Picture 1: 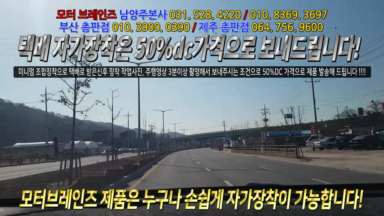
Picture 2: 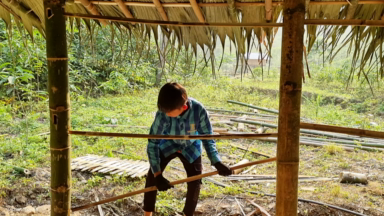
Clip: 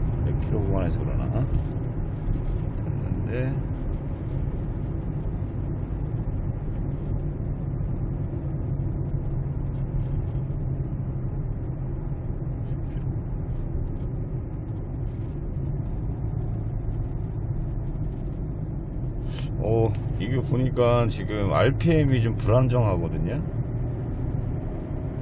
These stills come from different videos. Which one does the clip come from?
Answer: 1